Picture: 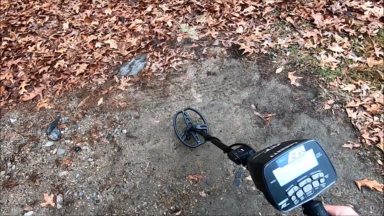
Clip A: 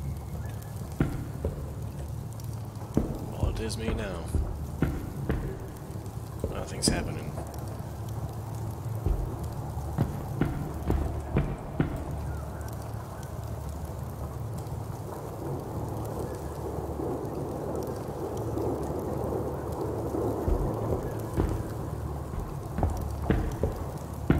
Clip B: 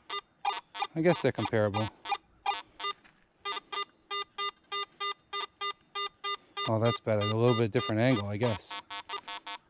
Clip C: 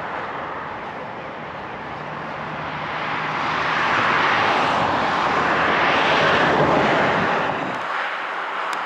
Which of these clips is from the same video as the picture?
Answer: B